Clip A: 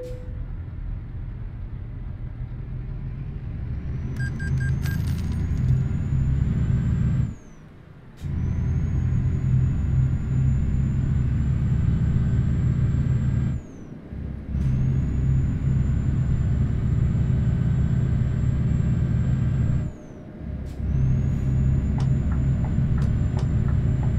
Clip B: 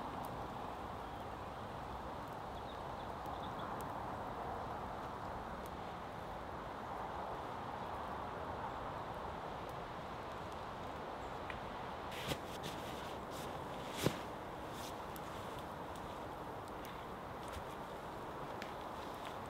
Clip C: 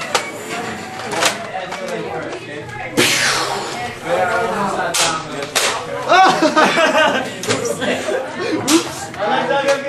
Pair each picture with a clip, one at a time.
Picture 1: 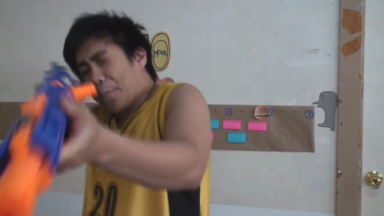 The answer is C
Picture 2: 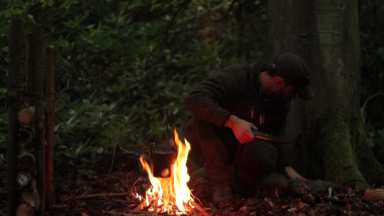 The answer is B